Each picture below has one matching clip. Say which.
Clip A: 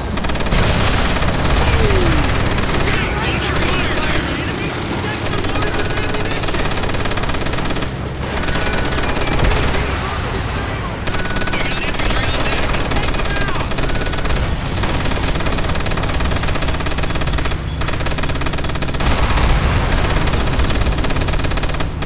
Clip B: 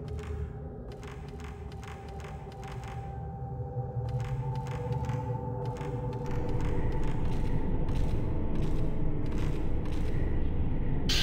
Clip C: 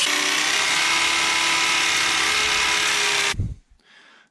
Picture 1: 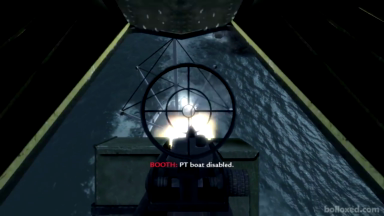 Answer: A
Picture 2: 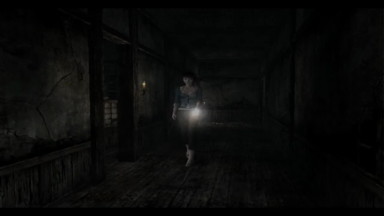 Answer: B